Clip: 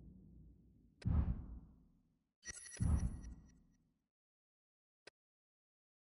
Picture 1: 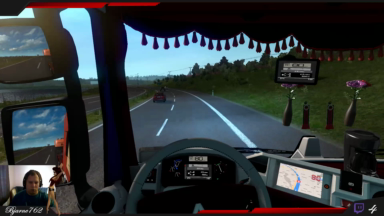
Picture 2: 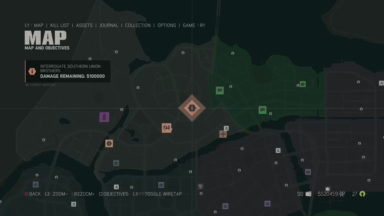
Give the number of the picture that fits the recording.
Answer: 2